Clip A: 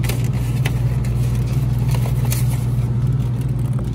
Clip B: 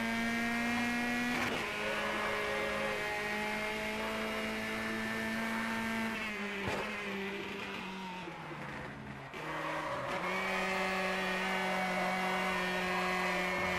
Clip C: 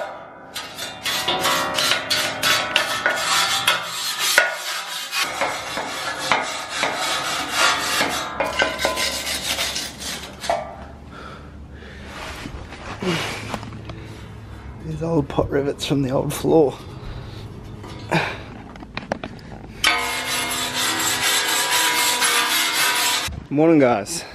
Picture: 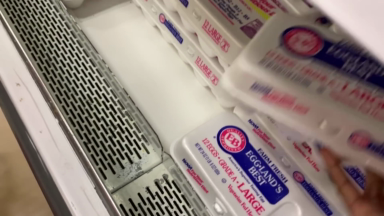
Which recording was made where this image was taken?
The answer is A